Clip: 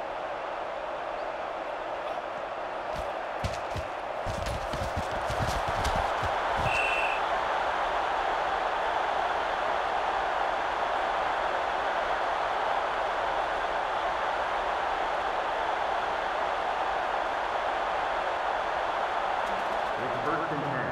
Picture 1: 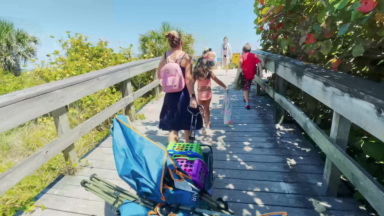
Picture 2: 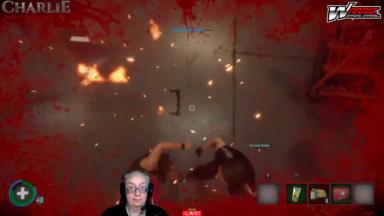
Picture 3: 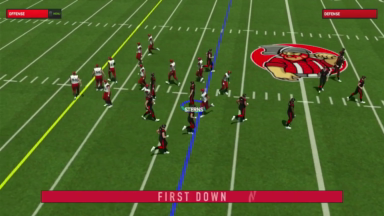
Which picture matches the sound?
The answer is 3